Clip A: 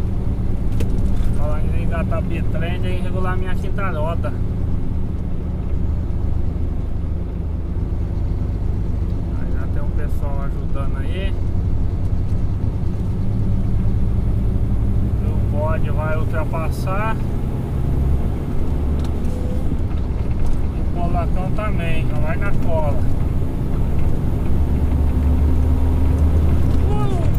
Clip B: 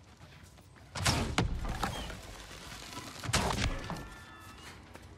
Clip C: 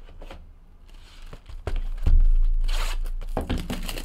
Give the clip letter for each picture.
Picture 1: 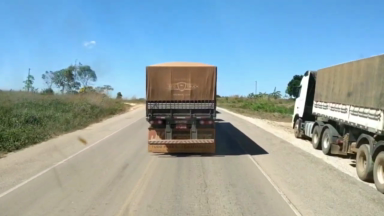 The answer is A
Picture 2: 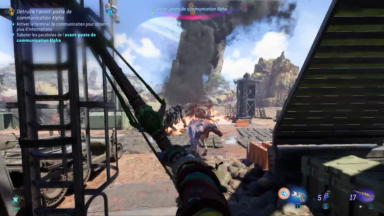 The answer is B